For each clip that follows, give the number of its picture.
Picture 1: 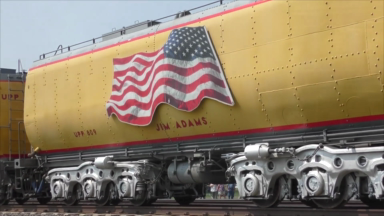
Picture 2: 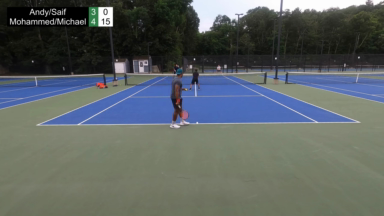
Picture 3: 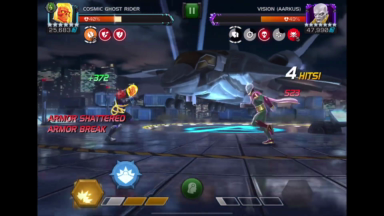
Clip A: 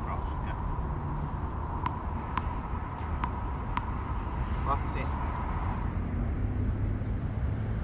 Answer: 2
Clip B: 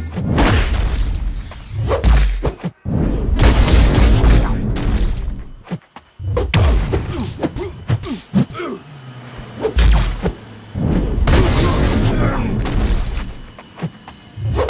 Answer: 3